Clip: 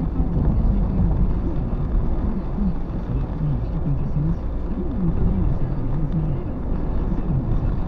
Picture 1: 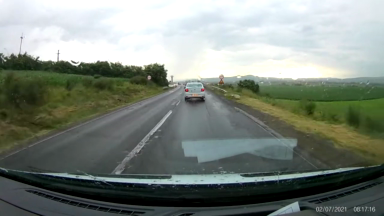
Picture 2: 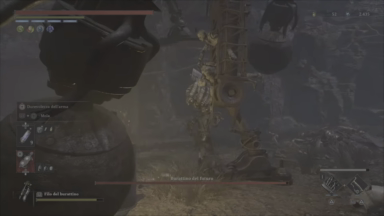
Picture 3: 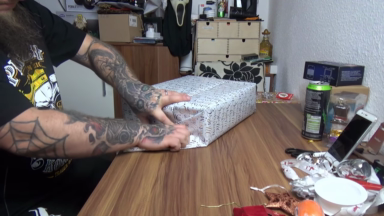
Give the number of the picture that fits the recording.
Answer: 1